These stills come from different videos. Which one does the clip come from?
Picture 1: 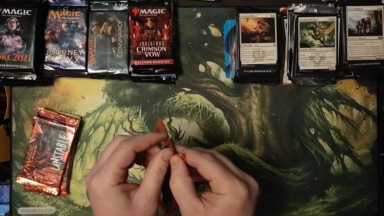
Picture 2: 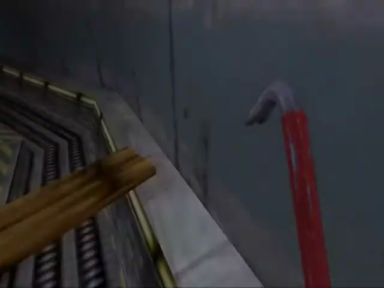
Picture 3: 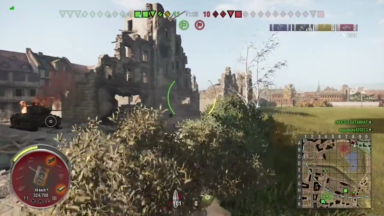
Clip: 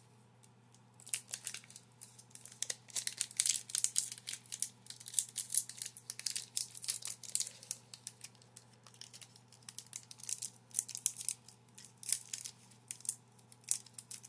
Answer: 1